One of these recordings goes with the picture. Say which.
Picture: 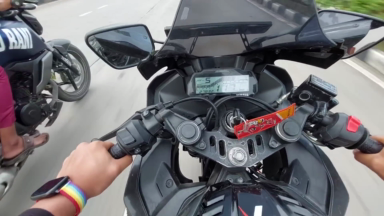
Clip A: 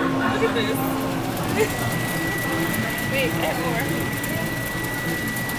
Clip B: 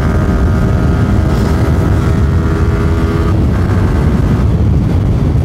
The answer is B